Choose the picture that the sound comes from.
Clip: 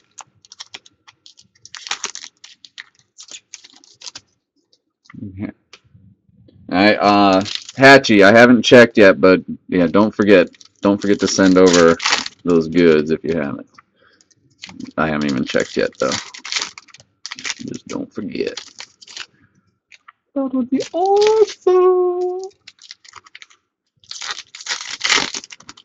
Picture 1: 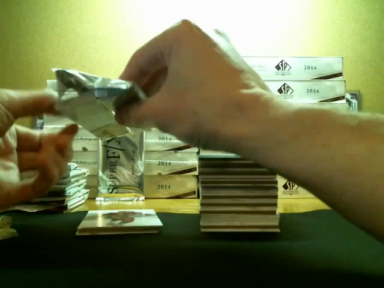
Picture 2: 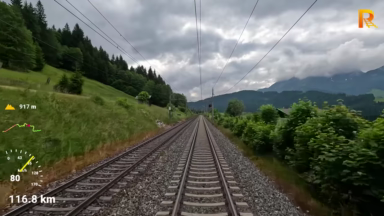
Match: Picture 1